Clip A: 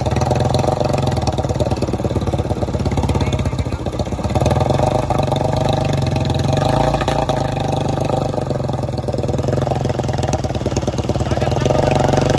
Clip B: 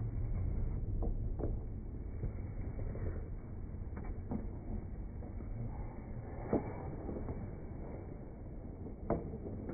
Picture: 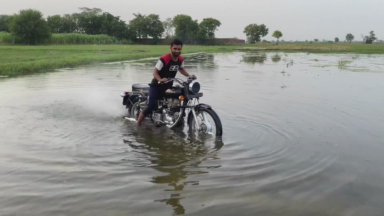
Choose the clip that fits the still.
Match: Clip A